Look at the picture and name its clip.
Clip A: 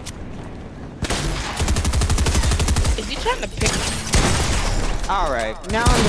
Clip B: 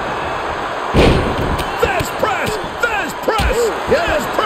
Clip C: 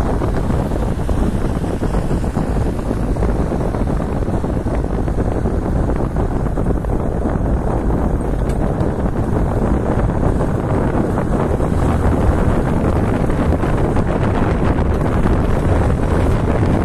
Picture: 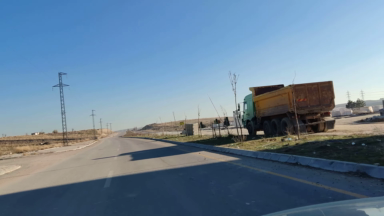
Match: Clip C